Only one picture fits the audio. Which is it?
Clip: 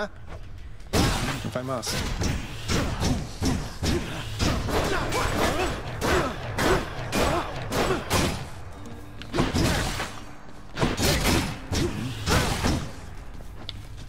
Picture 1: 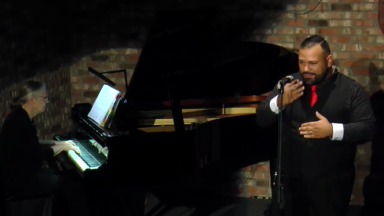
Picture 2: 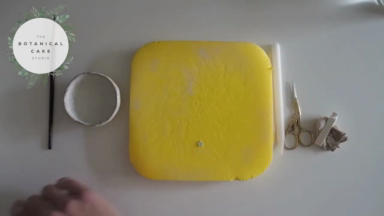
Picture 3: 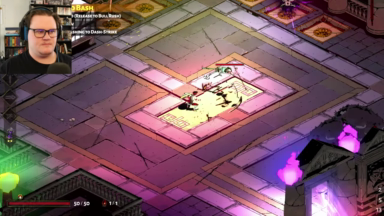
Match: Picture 3